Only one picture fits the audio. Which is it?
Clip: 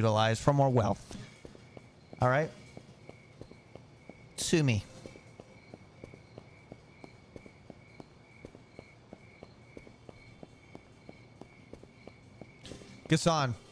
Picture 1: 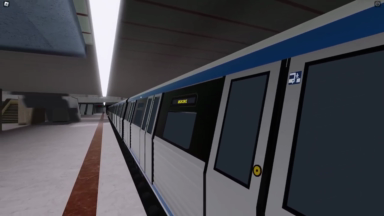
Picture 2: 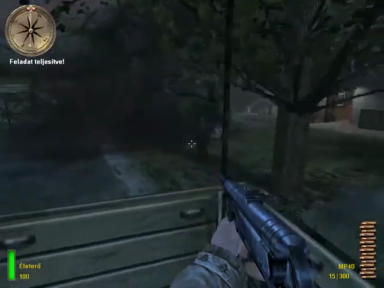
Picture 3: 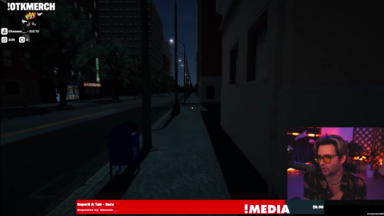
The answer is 3